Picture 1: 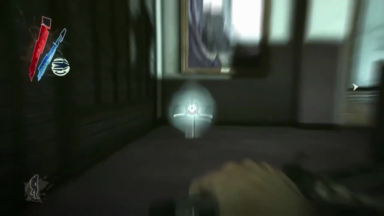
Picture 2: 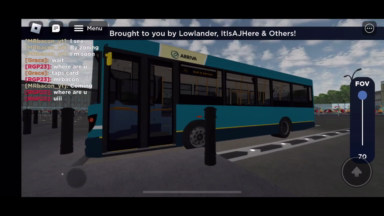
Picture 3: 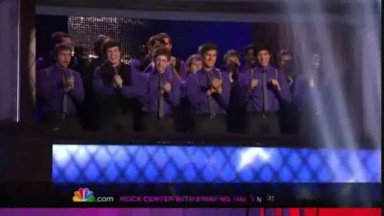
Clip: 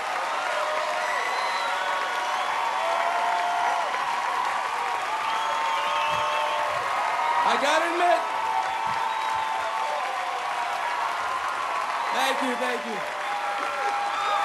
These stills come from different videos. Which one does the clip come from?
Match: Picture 3